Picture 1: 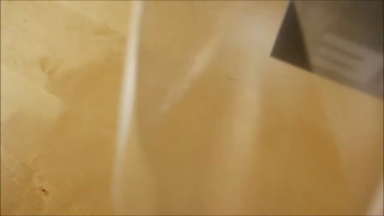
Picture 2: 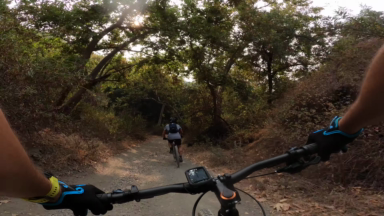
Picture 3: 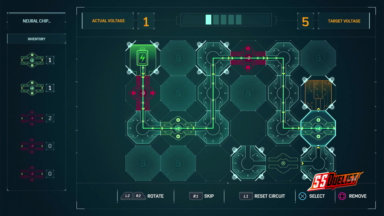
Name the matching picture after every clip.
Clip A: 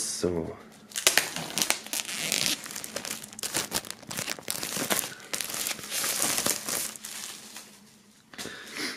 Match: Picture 1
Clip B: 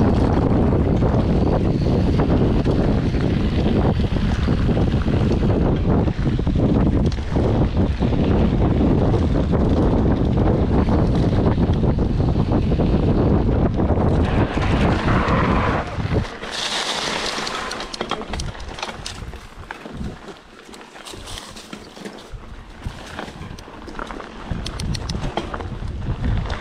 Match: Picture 2